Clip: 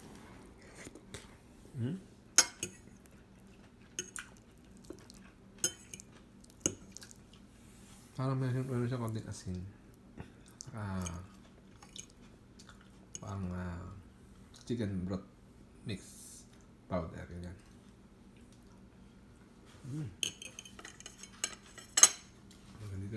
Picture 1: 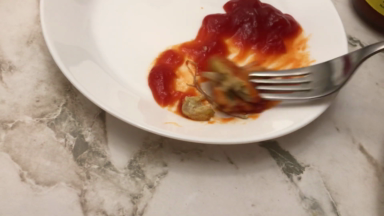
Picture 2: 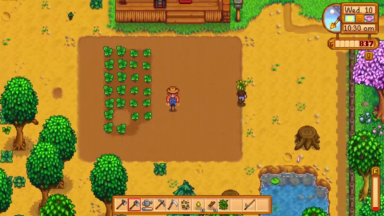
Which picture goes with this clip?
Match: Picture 1